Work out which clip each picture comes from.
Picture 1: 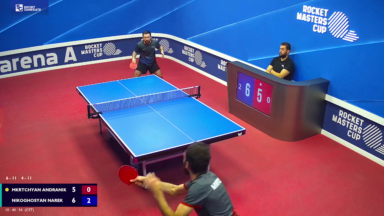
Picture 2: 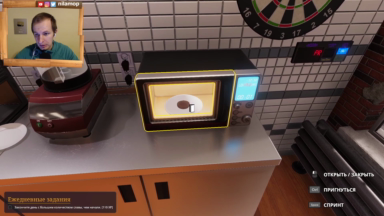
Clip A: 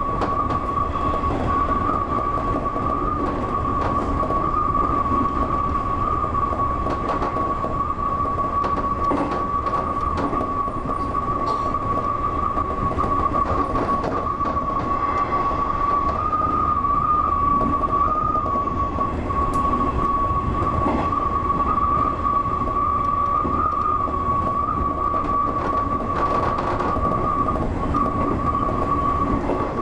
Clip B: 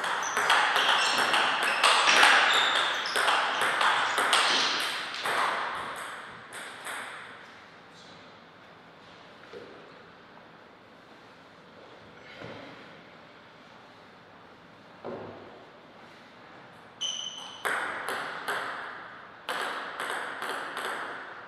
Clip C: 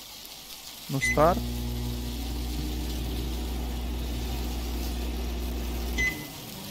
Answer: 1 B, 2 C